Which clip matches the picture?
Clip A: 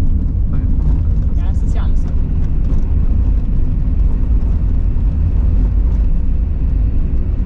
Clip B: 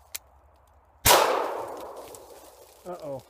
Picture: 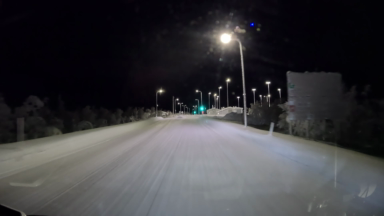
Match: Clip A